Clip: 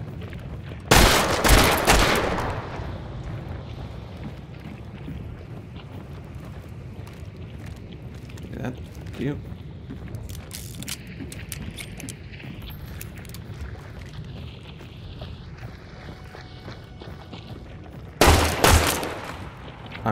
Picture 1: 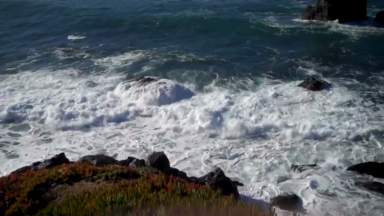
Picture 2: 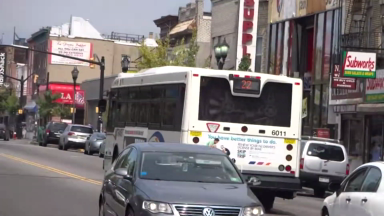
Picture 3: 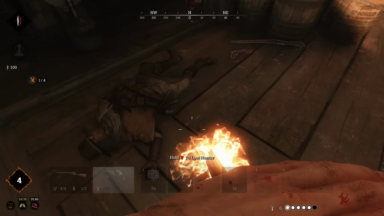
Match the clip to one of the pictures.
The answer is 3